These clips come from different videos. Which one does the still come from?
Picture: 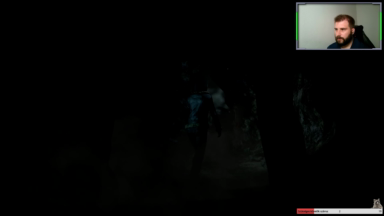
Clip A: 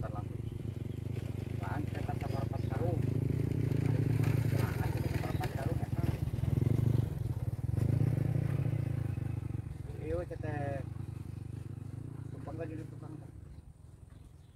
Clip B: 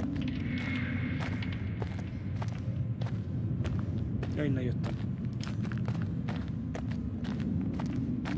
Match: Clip B